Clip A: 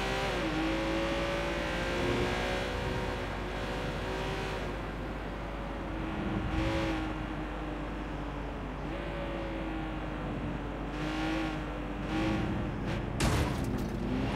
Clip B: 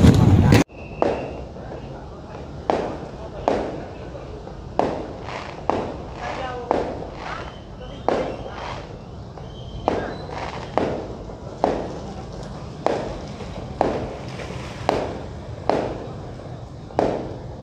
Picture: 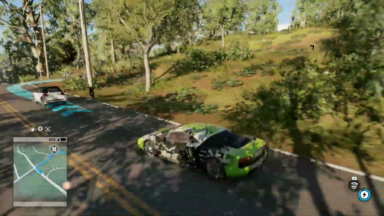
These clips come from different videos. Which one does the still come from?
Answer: A